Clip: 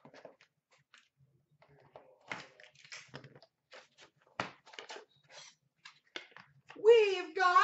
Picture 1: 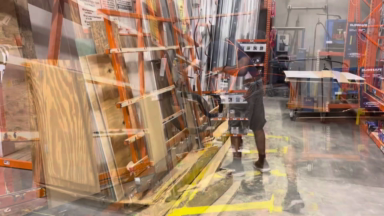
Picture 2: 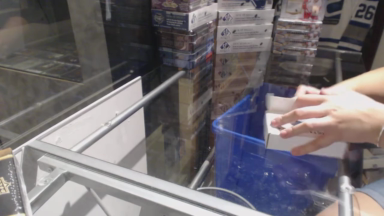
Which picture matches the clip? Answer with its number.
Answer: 2